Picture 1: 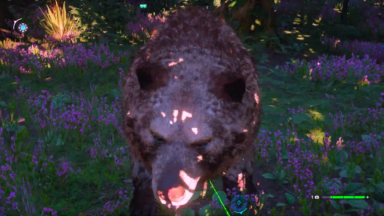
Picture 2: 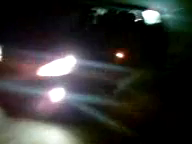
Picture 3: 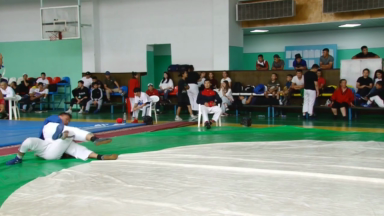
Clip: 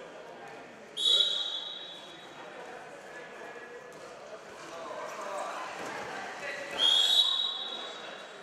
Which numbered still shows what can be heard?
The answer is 3